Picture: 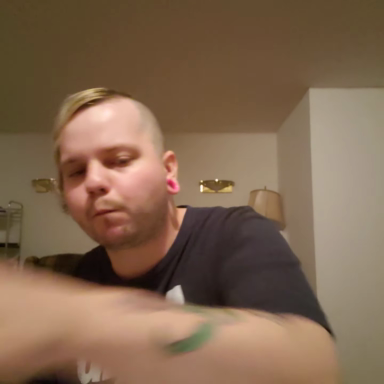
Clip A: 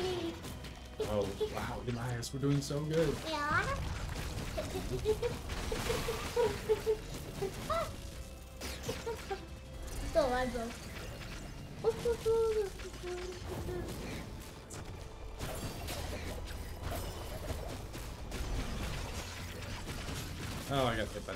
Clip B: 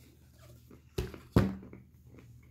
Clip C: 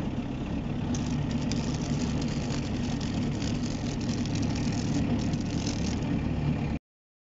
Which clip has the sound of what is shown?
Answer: B